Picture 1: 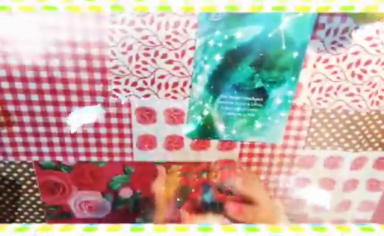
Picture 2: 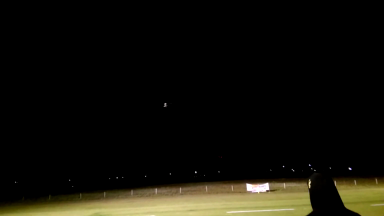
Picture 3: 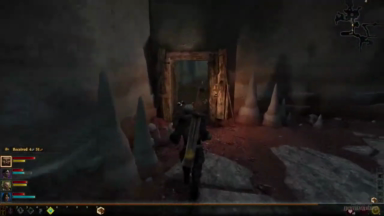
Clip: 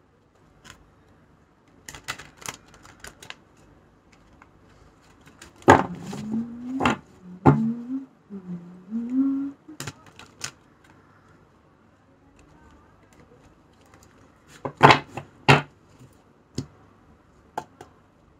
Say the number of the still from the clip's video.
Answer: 1